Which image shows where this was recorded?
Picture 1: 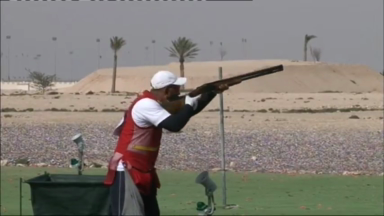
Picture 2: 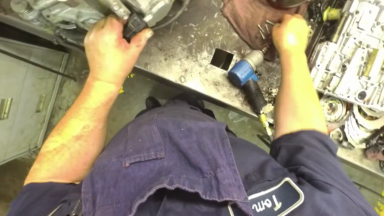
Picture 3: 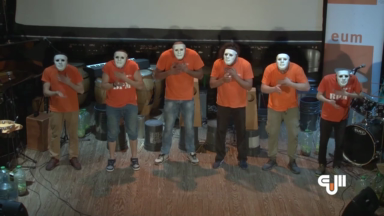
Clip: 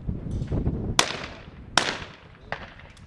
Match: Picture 1